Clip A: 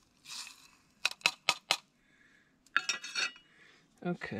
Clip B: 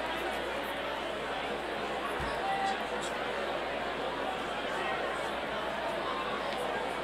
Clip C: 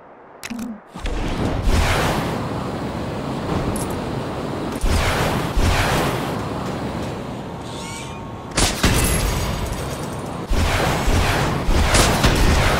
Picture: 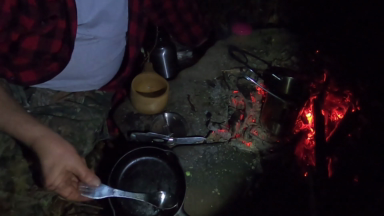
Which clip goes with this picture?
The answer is A